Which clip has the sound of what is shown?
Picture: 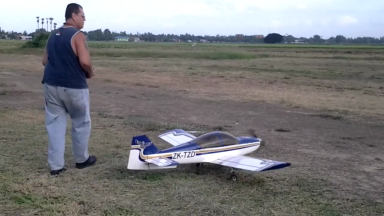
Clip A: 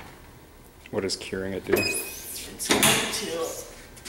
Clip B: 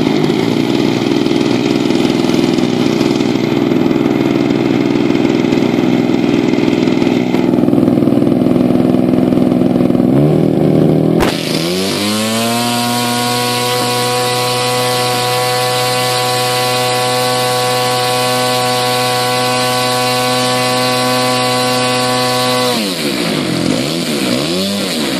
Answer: B